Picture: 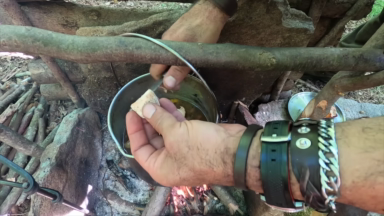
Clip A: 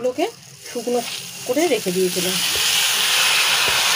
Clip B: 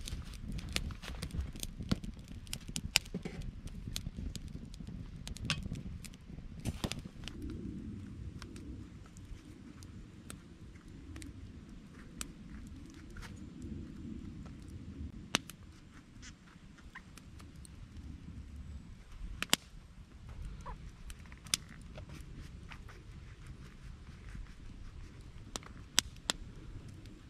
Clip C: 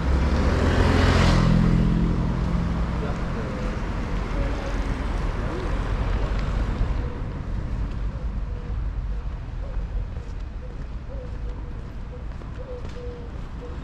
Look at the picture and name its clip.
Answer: B